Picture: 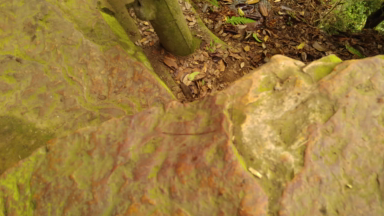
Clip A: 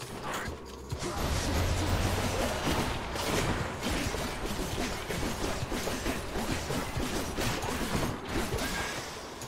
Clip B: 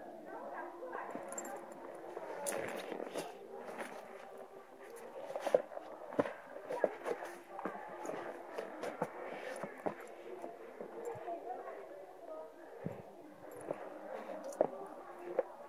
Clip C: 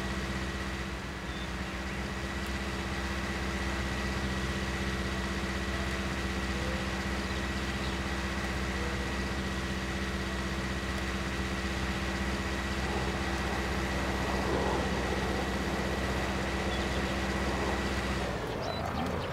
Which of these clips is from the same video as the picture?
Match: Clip B